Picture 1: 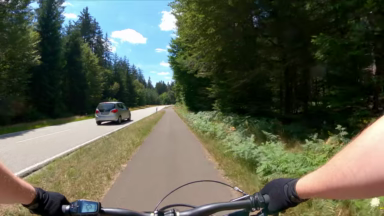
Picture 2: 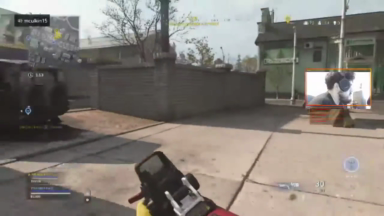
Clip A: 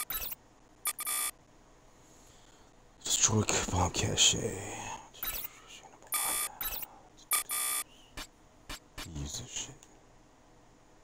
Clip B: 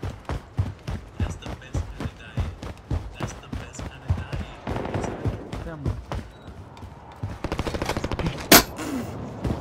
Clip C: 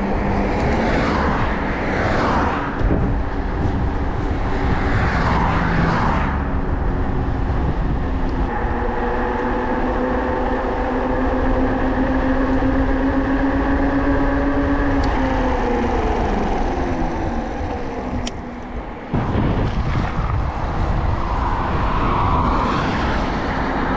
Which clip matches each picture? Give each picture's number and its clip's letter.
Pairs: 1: C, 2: B